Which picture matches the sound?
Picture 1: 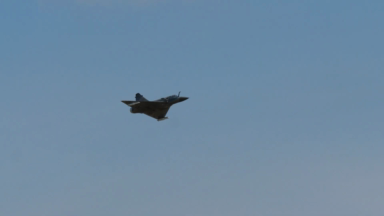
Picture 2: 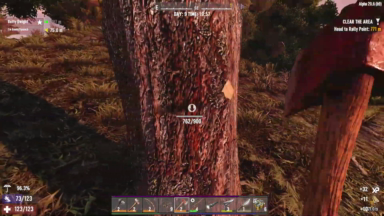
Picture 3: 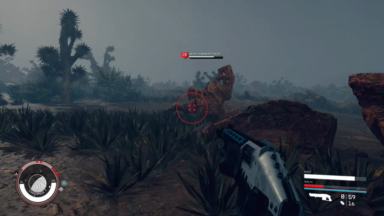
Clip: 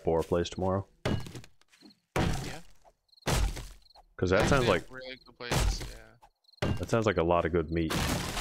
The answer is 2